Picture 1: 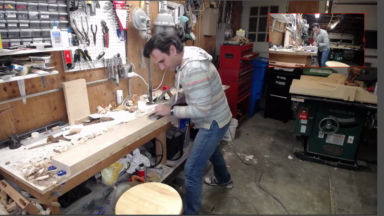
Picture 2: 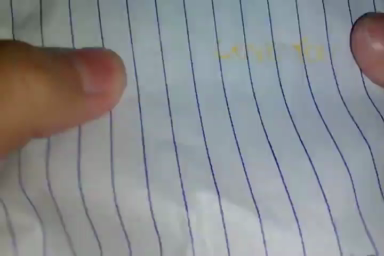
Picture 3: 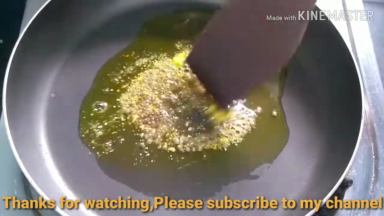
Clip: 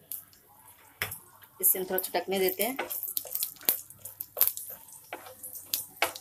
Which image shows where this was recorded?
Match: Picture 3